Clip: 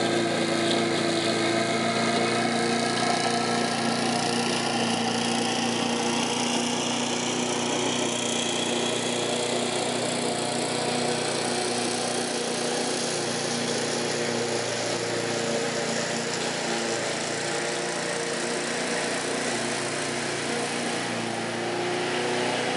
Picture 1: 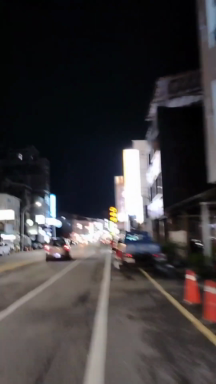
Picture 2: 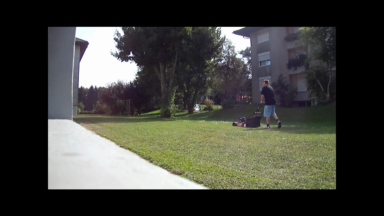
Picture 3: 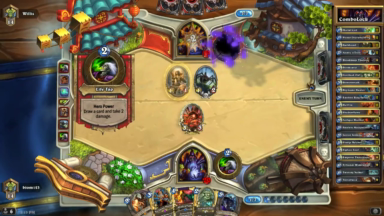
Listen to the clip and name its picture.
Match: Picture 2